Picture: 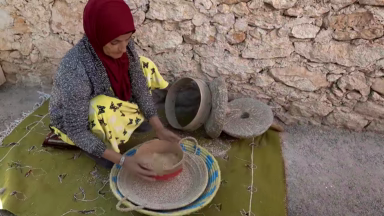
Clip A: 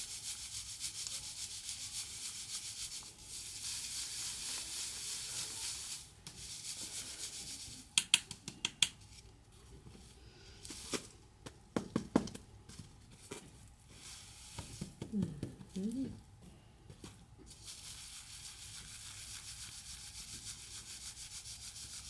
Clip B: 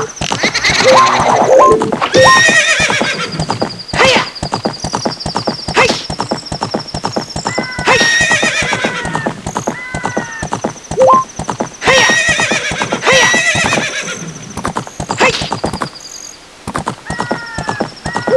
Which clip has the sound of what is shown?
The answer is A